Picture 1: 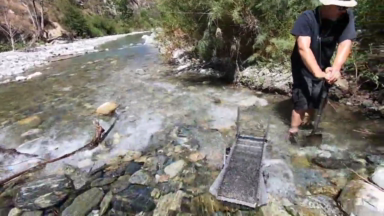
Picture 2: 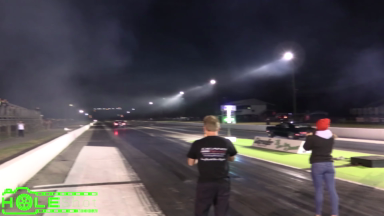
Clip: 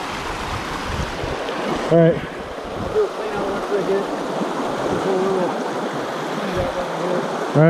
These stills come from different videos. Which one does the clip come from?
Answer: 1